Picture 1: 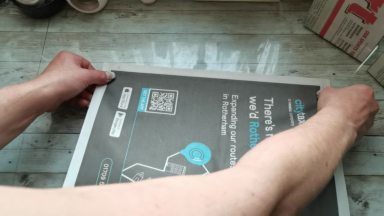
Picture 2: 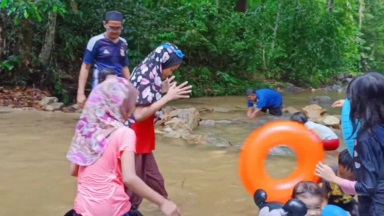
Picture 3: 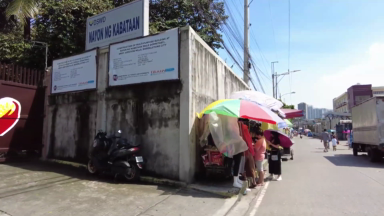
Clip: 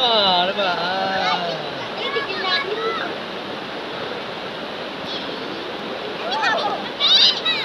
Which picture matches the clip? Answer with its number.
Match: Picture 2